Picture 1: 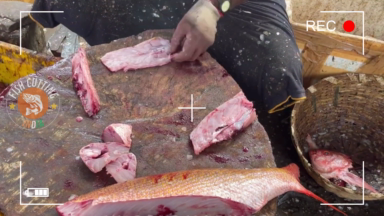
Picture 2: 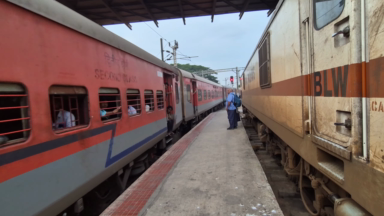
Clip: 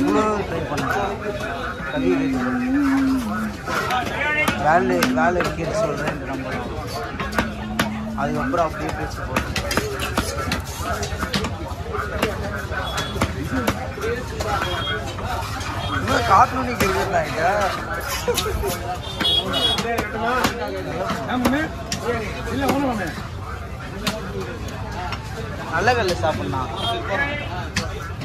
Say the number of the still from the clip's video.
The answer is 1